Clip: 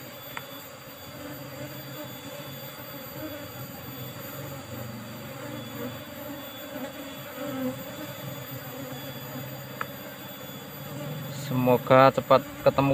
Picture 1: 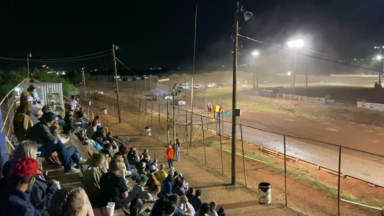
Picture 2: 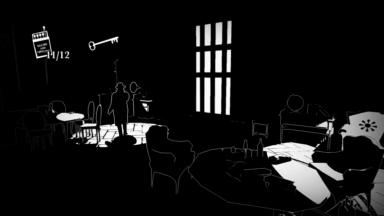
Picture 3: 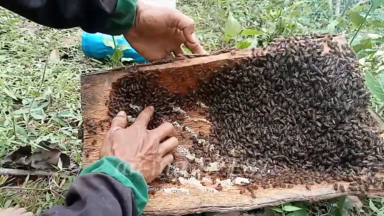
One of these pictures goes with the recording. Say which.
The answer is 3